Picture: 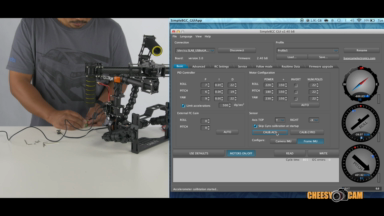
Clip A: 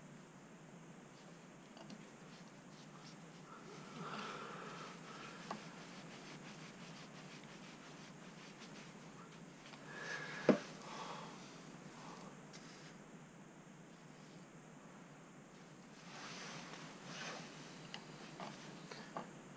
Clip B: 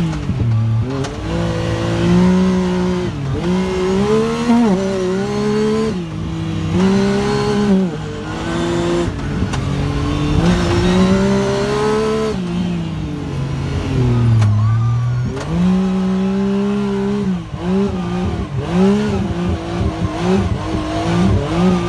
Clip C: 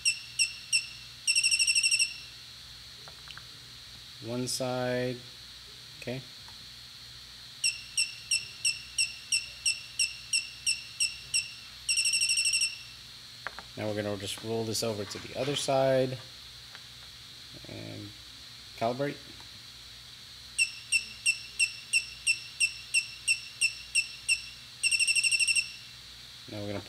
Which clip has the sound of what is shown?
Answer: C